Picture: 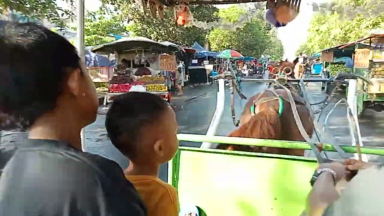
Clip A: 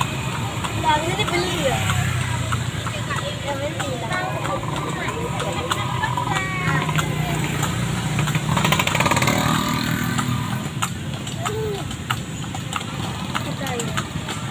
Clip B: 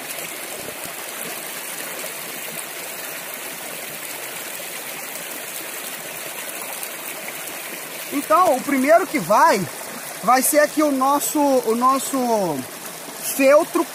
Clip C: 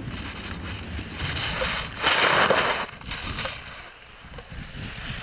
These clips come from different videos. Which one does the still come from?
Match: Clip A